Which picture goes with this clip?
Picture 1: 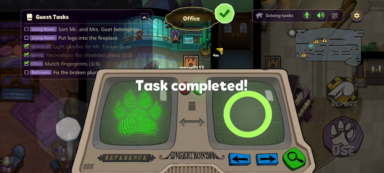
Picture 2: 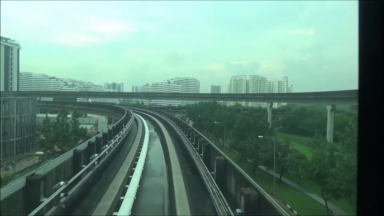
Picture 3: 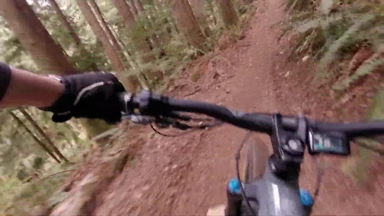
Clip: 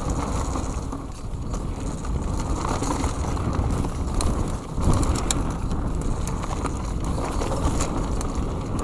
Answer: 3